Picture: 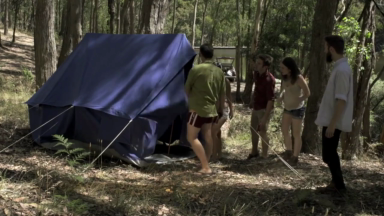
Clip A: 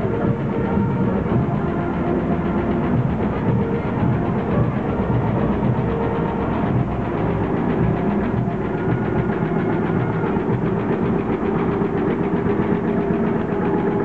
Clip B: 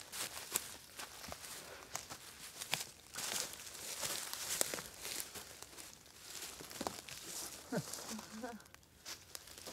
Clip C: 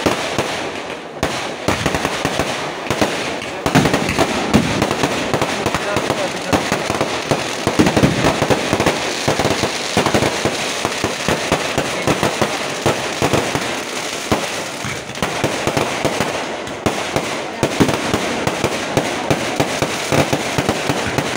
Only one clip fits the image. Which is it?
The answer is B